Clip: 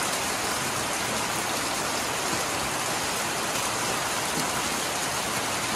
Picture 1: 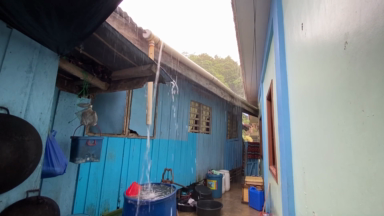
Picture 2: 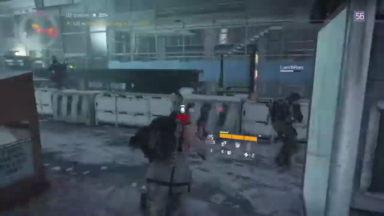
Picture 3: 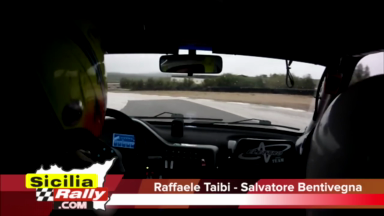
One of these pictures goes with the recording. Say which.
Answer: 1